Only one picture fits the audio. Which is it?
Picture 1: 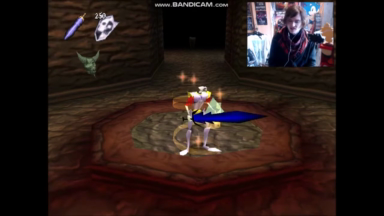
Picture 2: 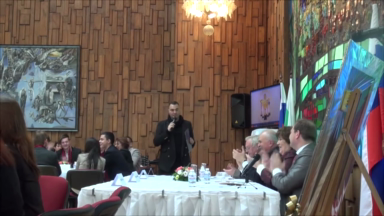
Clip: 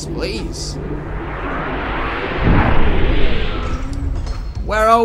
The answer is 1